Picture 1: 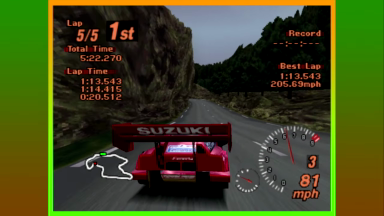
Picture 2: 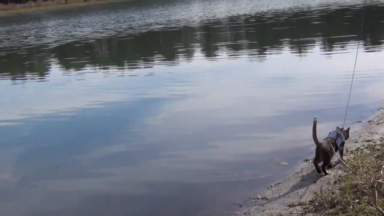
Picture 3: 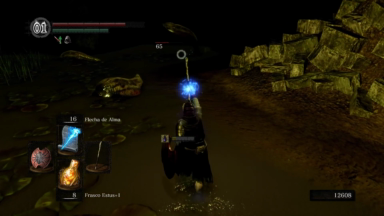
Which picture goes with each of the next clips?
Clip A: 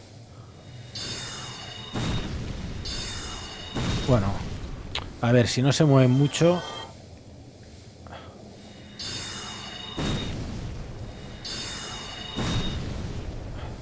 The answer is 3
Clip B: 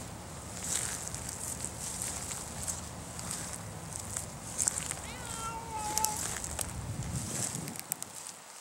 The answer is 2